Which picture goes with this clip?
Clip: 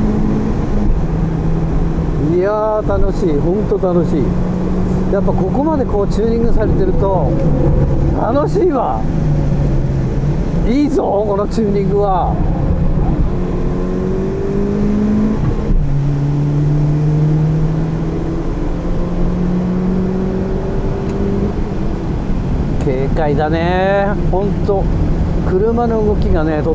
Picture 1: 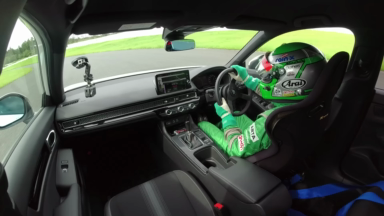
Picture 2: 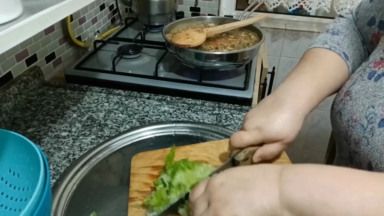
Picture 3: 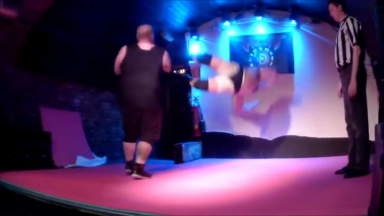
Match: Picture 1